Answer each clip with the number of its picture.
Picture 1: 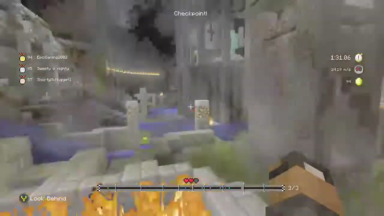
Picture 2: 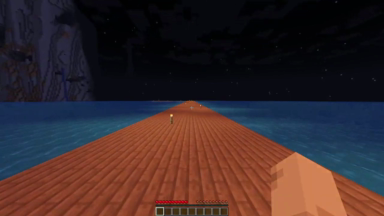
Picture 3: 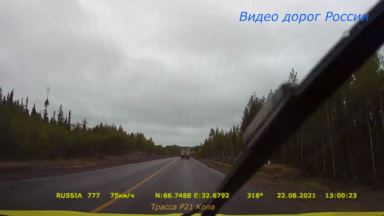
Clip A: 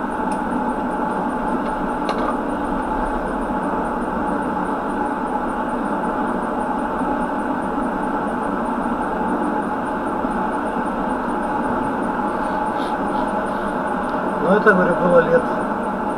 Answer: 3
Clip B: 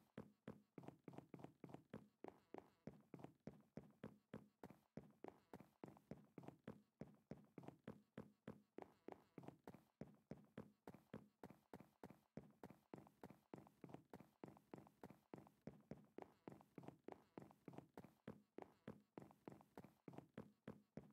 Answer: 2